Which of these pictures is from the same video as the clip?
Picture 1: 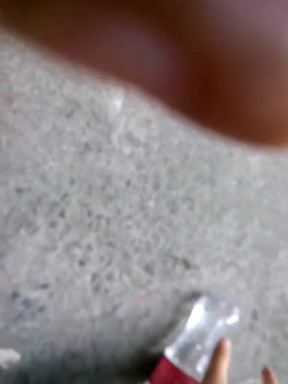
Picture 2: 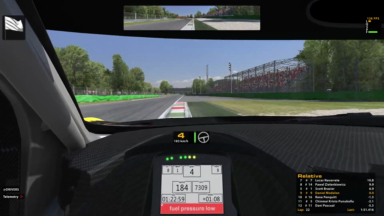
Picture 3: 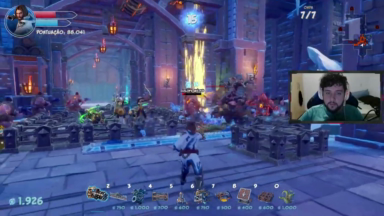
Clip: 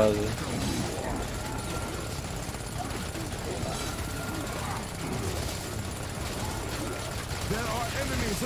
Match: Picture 3